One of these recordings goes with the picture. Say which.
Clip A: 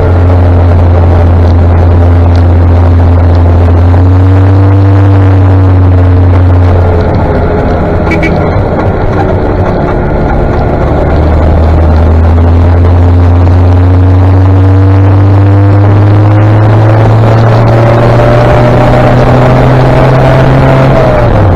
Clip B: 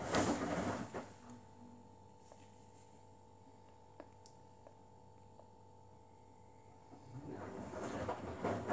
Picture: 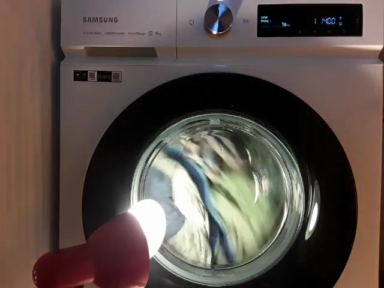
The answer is B